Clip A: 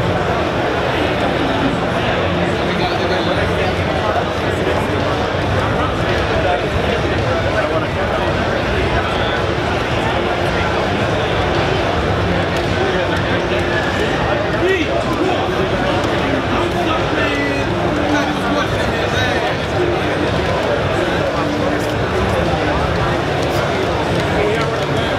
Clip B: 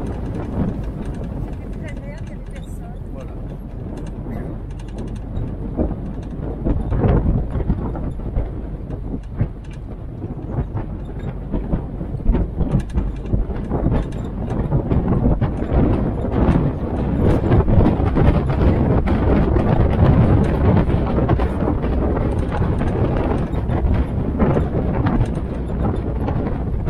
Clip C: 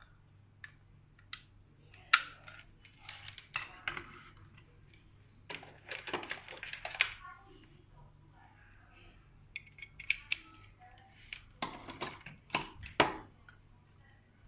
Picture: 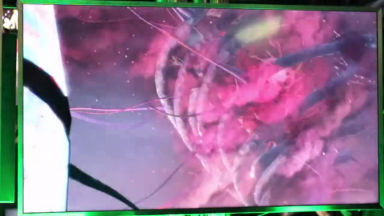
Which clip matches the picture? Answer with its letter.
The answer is A